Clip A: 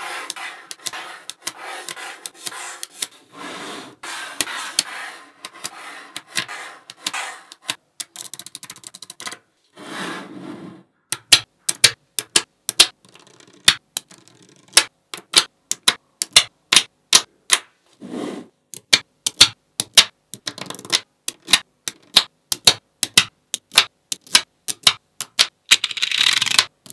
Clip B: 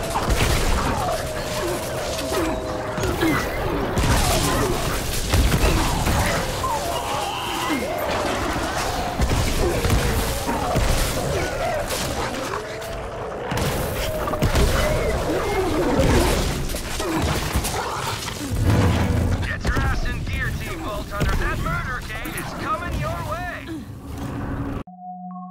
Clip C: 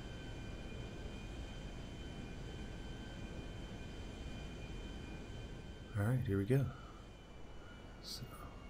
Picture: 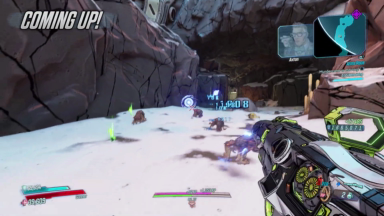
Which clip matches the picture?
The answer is B